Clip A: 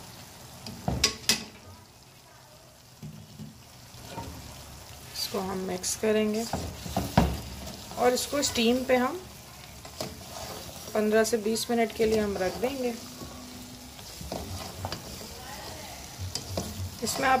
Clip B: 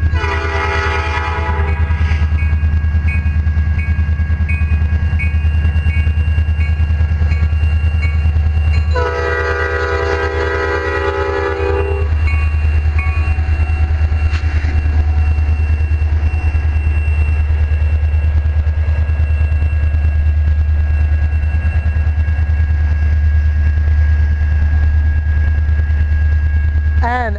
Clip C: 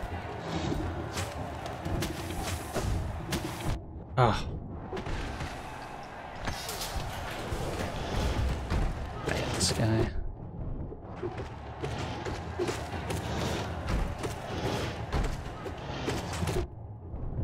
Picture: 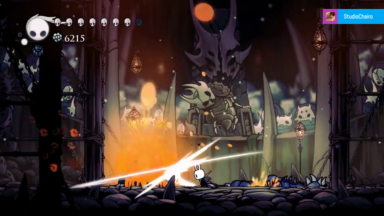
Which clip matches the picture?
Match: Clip C